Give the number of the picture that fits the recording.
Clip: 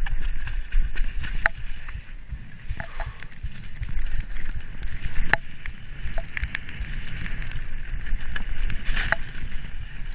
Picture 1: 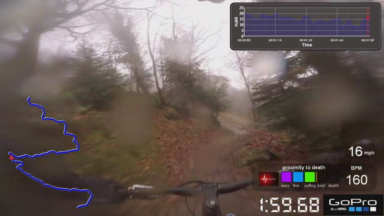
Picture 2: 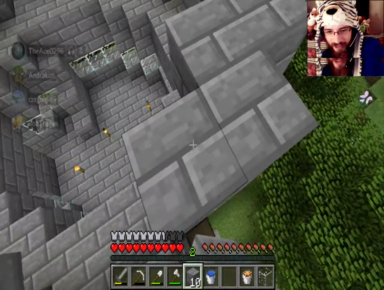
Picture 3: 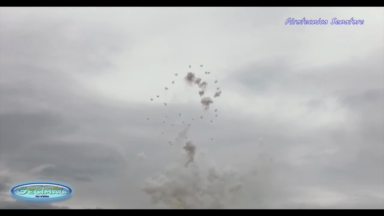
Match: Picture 1